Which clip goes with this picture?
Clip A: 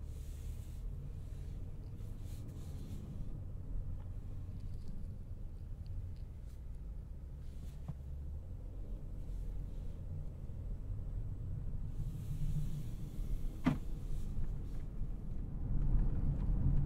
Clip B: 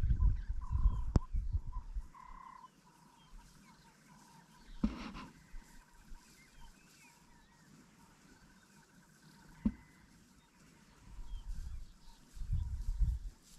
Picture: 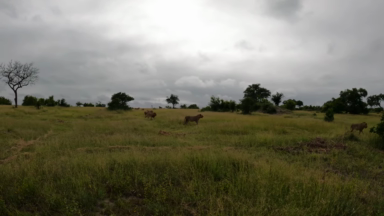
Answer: B